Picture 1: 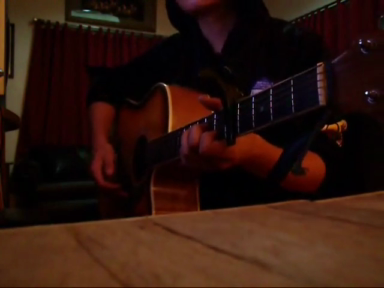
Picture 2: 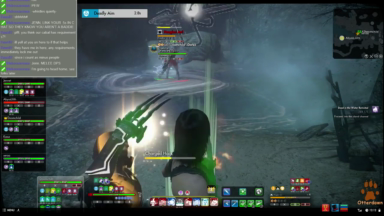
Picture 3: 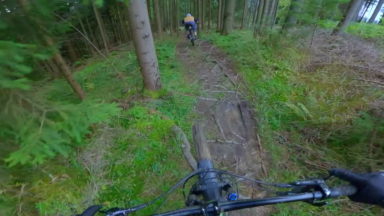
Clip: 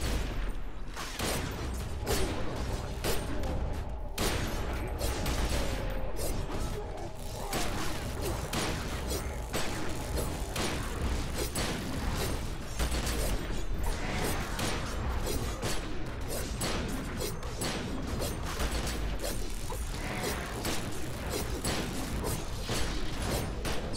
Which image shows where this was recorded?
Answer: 2